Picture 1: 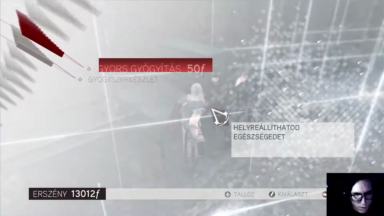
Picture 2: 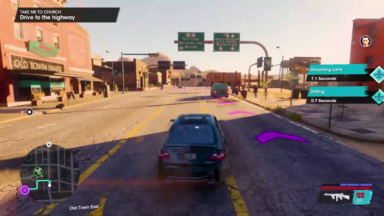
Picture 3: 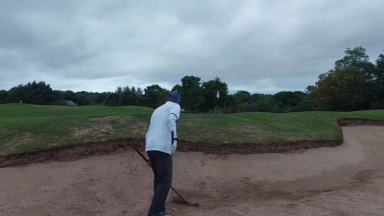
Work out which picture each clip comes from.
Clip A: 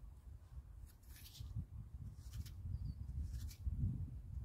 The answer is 3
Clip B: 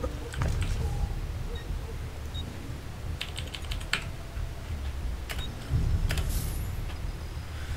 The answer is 1